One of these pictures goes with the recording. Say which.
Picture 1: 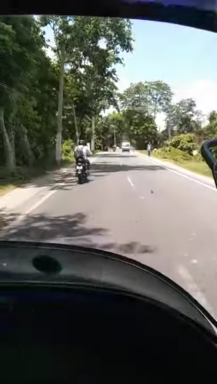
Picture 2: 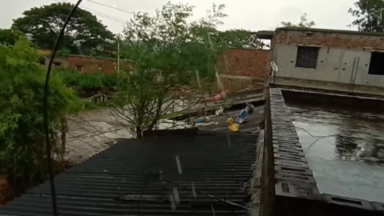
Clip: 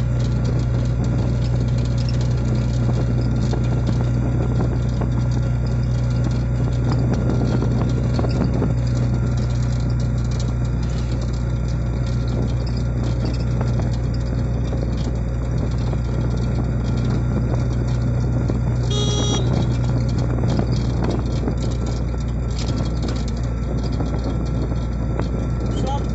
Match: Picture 1